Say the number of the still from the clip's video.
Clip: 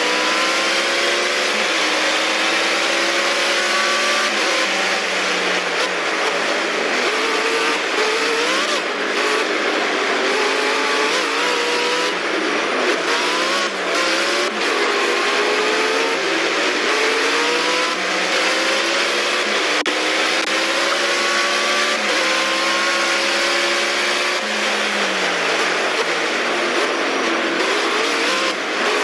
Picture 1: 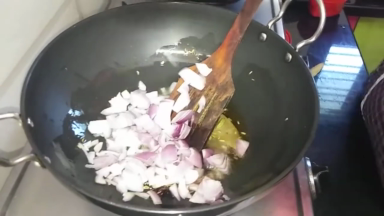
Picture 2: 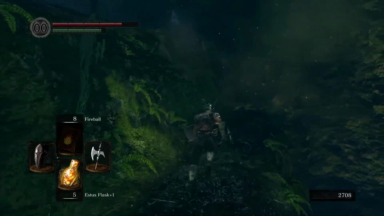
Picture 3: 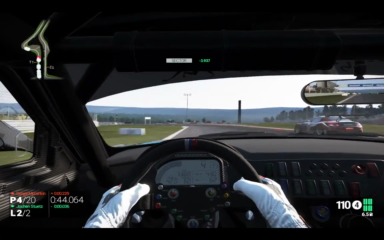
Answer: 3